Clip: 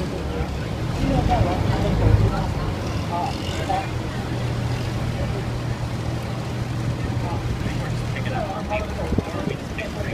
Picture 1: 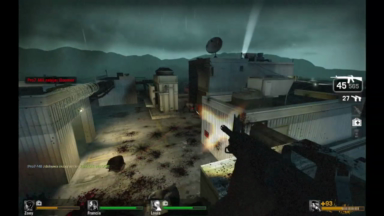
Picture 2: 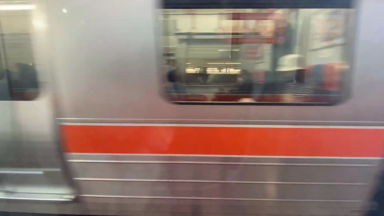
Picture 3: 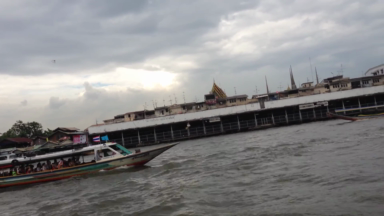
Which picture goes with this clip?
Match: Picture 3